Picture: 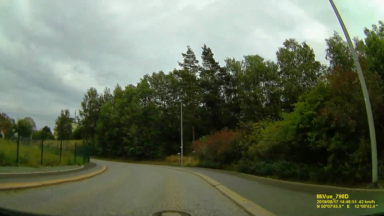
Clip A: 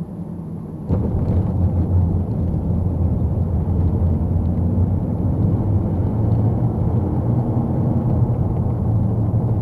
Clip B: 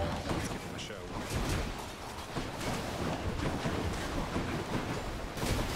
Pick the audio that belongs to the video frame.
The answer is A